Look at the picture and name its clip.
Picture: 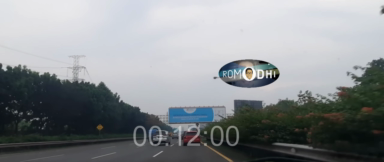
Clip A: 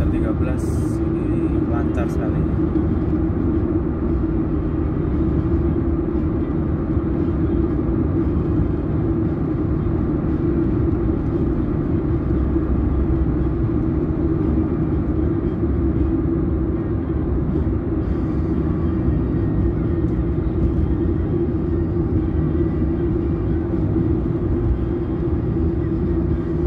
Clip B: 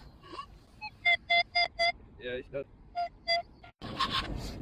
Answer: A